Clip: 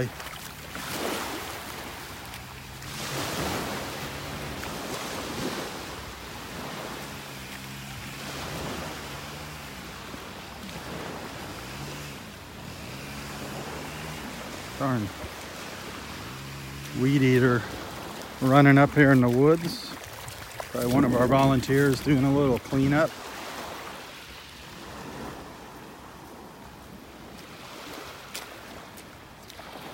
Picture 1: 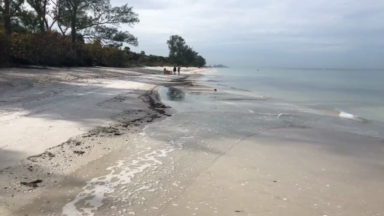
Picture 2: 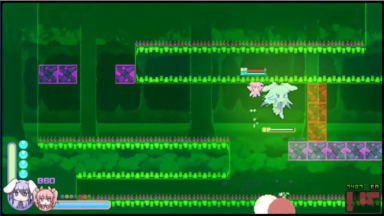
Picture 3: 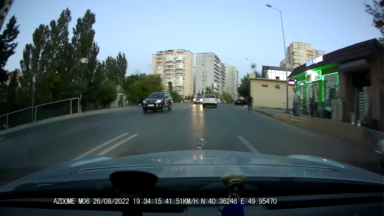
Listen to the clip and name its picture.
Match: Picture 1